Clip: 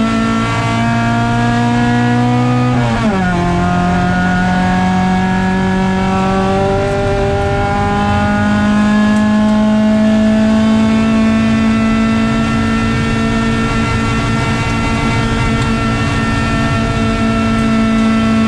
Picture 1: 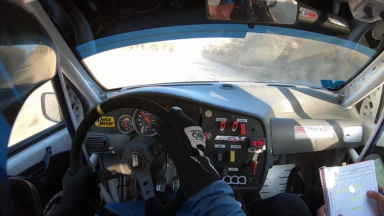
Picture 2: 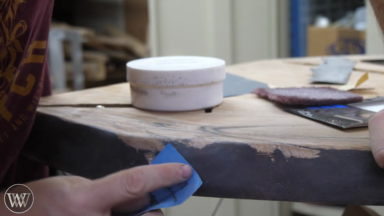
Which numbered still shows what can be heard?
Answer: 1